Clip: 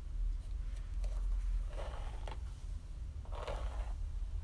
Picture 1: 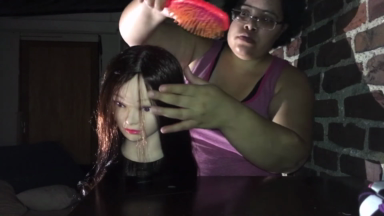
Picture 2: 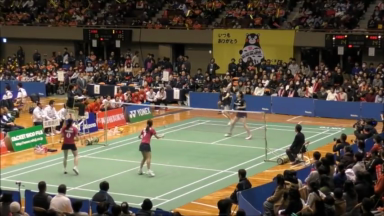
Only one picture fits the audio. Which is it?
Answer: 1